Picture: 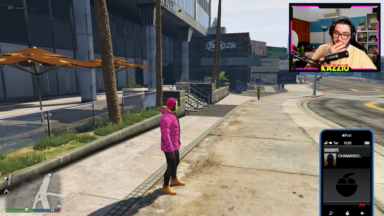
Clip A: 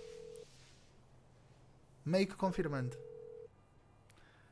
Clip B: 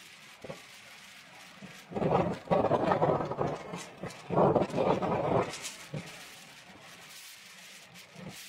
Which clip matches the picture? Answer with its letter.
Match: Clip A